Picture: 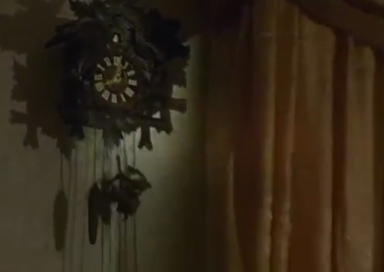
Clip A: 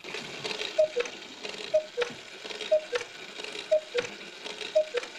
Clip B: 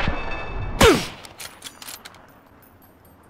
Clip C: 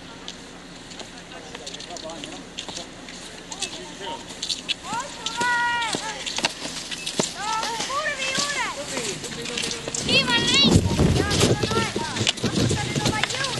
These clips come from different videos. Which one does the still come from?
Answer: A